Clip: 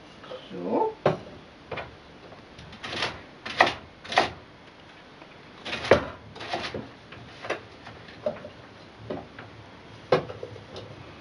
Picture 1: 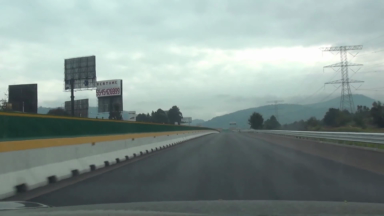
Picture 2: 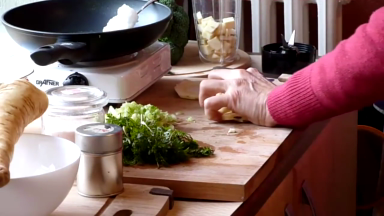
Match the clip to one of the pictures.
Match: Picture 2